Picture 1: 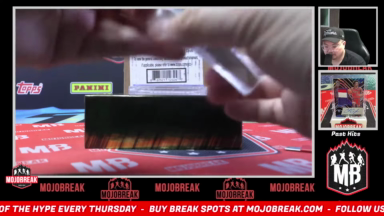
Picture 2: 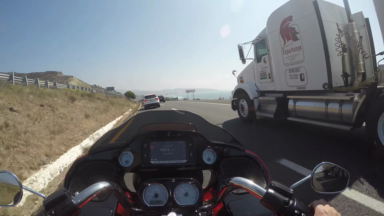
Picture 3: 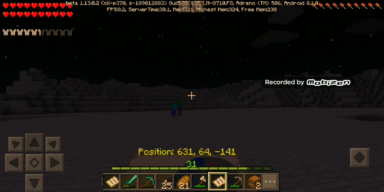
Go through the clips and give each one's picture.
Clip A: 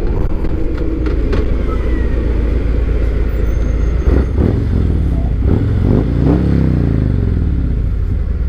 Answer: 2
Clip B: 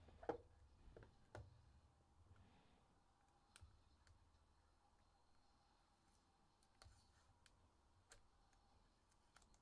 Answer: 1